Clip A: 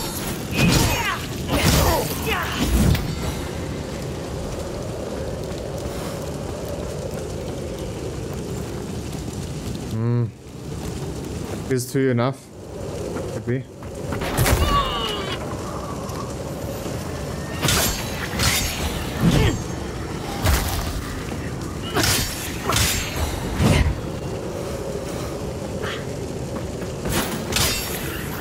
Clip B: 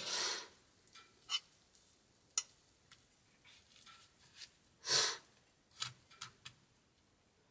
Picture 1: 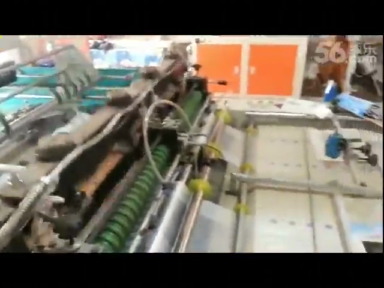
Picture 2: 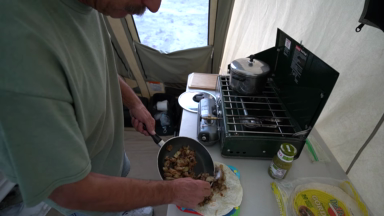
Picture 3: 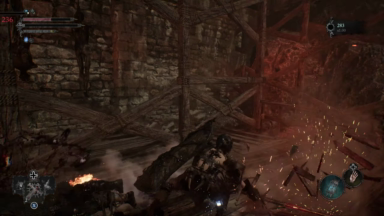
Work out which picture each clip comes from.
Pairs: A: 3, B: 2